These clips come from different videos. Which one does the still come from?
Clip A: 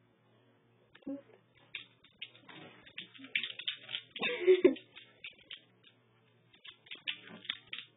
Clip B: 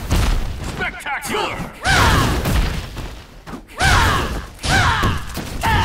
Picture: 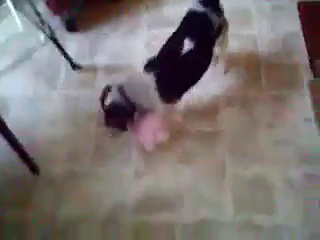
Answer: A